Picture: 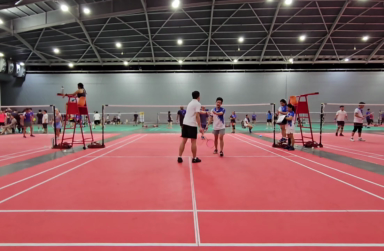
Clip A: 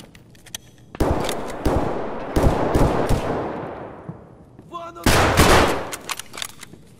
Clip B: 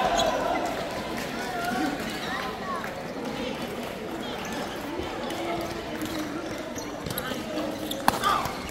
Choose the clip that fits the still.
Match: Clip B